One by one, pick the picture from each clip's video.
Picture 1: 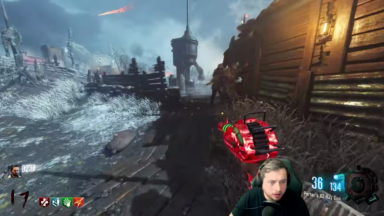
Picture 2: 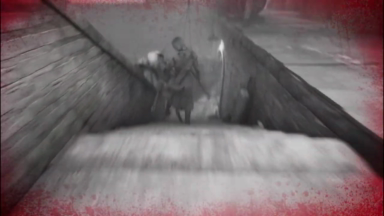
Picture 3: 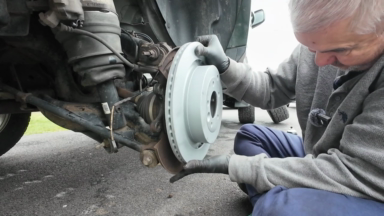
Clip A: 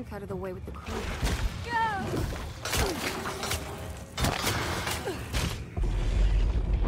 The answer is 2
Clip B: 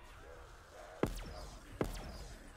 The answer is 1